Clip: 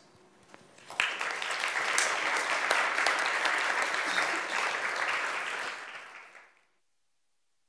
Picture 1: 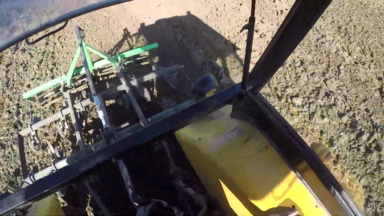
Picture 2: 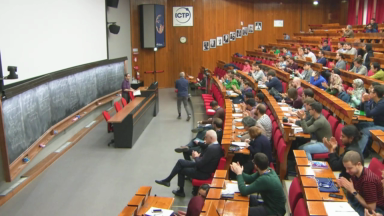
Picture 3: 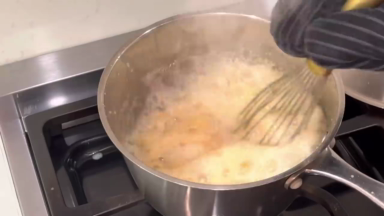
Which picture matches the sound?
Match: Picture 2